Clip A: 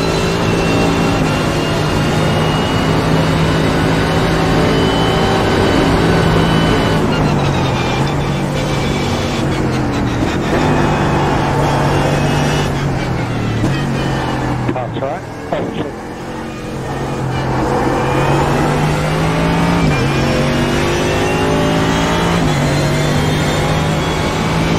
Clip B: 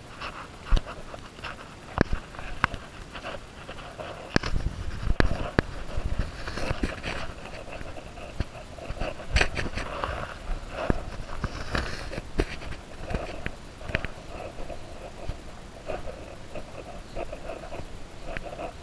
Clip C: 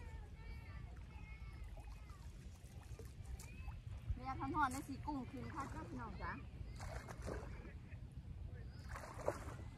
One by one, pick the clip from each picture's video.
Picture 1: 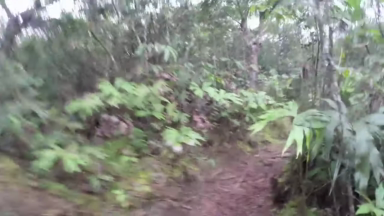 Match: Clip B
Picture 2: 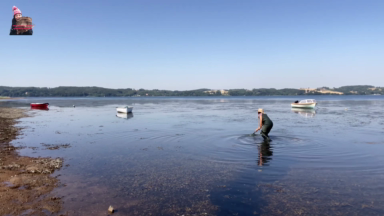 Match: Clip C